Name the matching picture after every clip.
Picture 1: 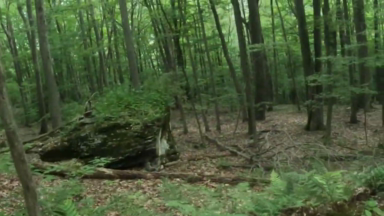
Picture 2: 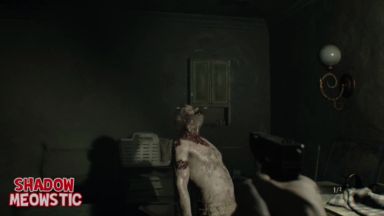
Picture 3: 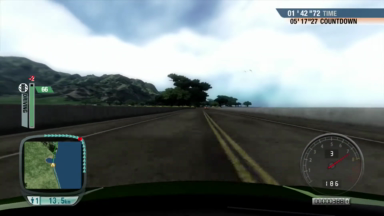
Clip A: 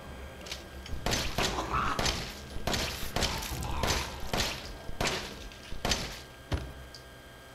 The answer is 2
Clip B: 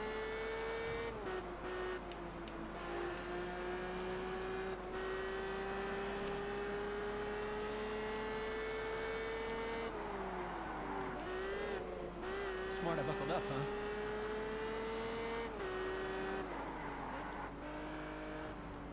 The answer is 3